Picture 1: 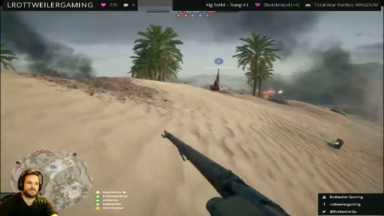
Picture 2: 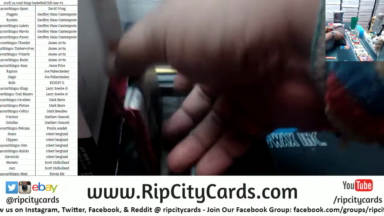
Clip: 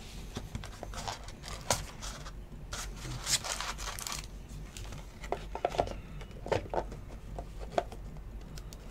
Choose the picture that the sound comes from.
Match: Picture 2